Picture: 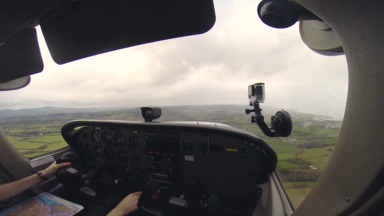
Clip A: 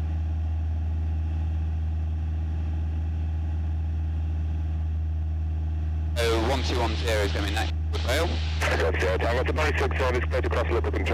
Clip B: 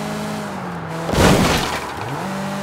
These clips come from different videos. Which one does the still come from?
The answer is A